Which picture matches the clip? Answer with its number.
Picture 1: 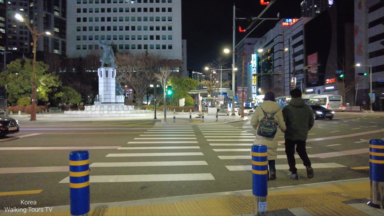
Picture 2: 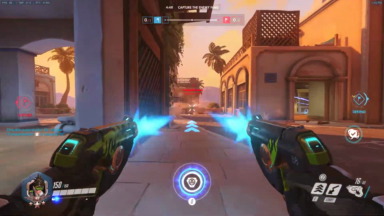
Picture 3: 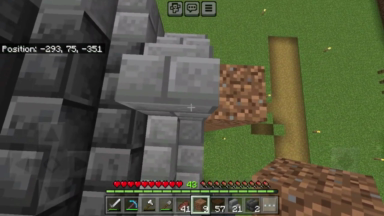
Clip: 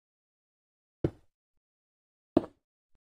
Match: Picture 3